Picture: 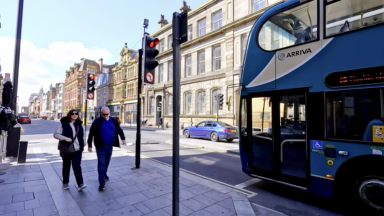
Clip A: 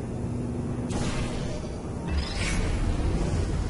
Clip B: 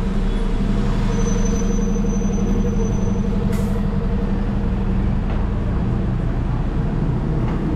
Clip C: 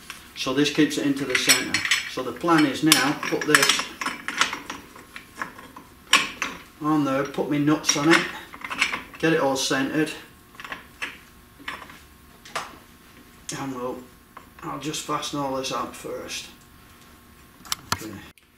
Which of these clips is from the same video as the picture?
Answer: B